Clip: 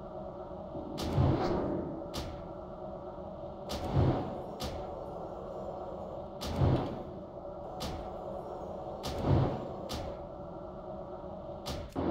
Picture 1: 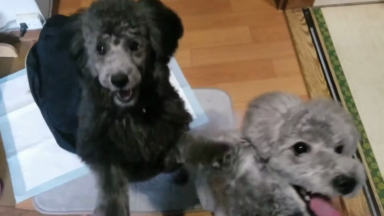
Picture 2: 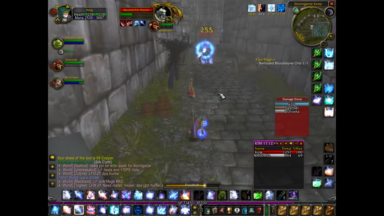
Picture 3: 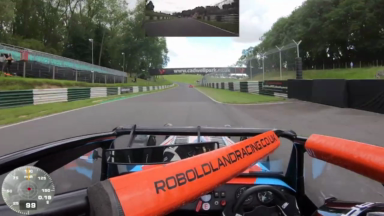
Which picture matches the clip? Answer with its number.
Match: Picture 2